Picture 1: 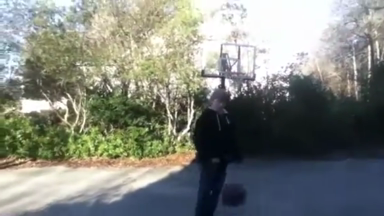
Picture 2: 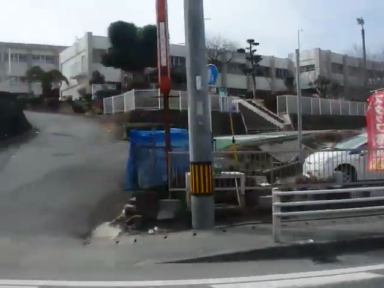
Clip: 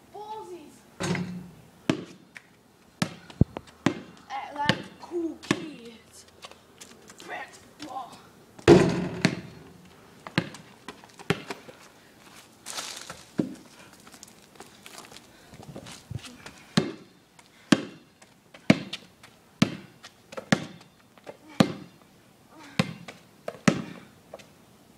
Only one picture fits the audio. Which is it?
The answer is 1